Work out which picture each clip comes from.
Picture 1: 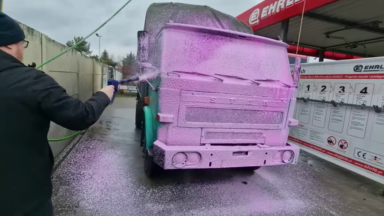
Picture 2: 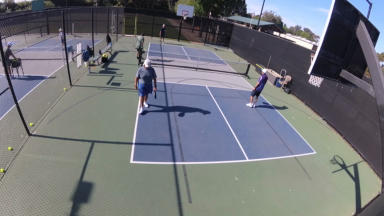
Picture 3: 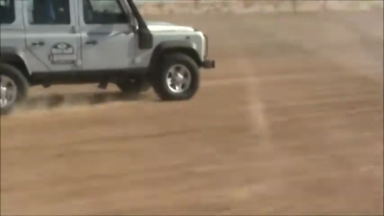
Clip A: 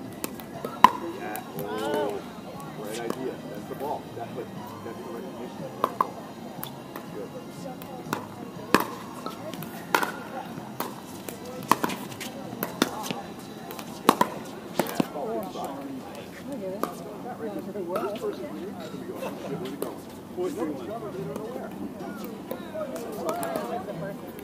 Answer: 2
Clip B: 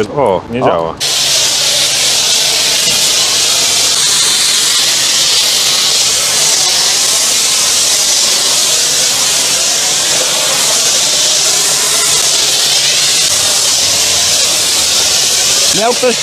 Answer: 1